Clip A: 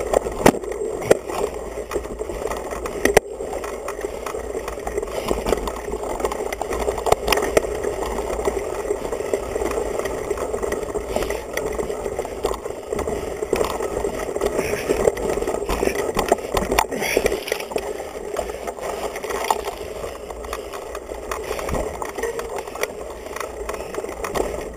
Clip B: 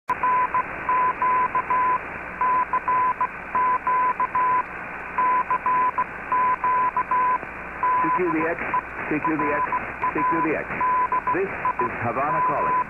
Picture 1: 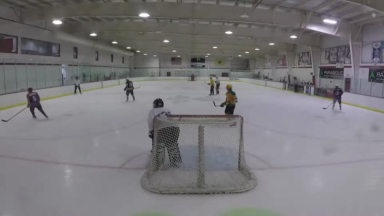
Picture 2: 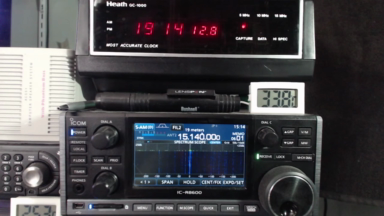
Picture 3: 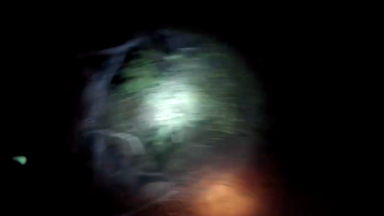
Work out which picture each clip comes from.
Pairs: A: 3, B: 2